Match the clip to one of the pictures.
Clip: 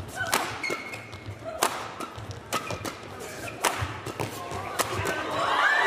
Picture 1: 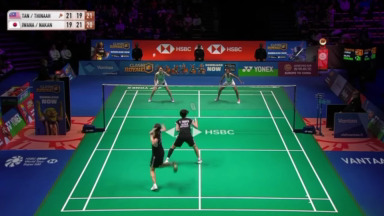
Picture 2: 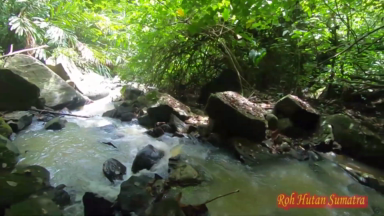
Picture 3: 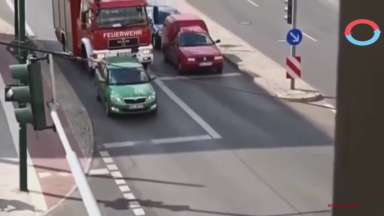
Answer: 1